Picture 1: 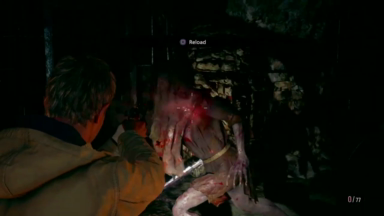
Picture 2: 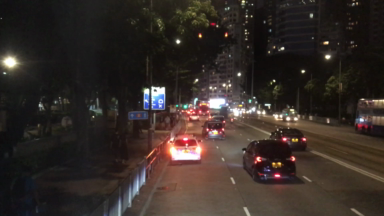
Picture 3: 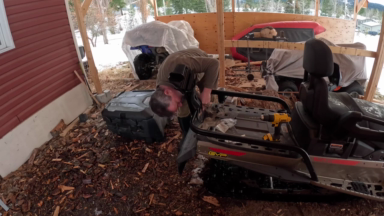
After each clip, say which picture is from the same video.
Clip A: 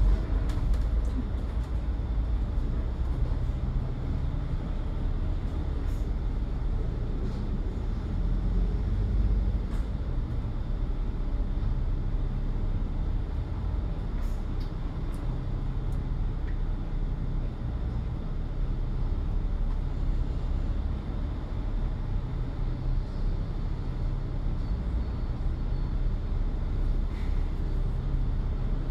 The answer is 2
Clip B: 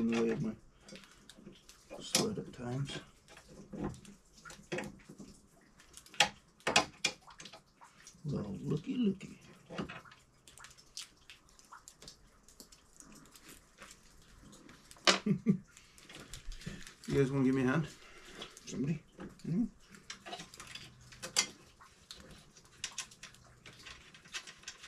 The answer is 3